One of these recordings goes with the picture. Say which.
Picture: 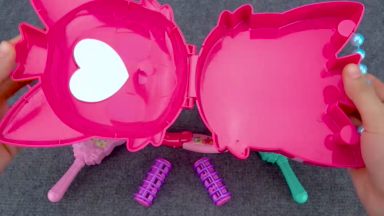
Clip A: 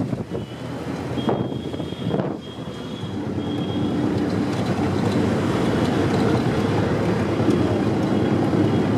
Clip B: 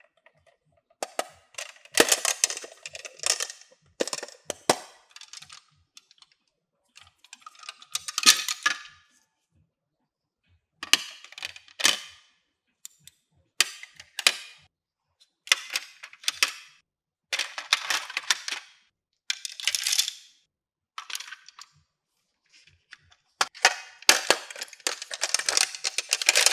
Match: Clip B